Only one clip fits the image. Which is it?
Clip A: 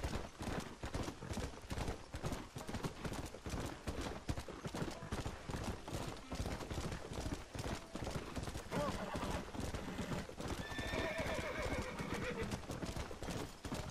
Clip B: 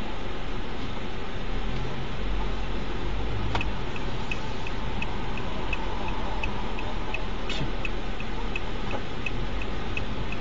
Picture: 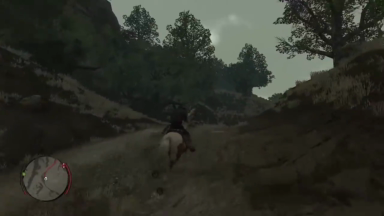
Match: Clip A